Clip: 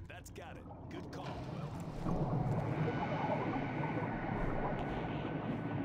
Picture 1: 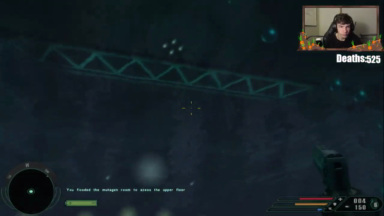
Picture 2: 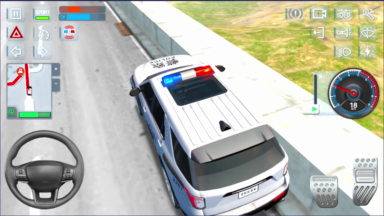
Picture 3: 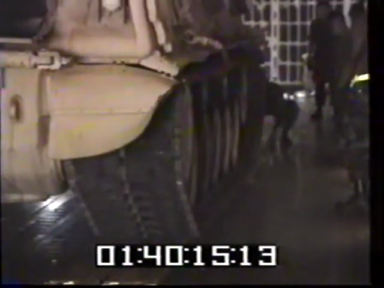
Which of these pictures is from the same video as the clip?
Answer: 1